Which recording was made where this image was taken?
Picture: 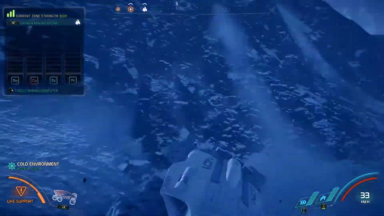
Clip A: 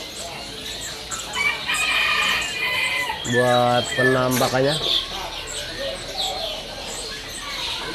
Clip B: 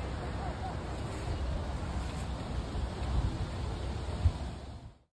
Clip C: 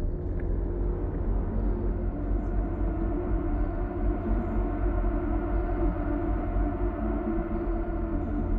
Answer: C